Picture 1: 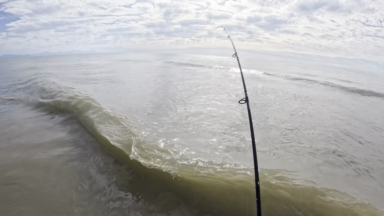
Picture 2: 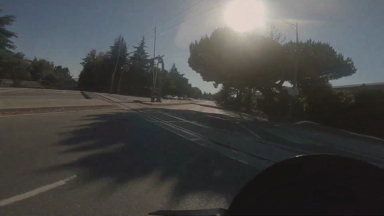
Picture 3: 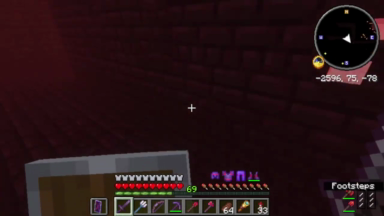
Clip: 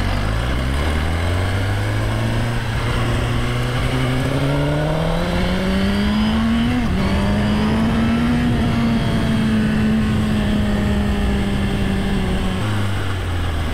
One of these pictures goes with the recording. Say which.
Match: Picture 2